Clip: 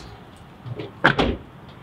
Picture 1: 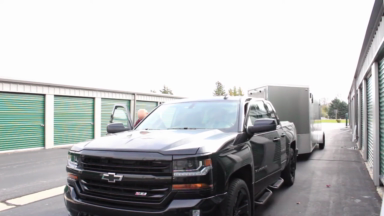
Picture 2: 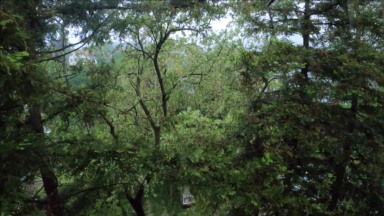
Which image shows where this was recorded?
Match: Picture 1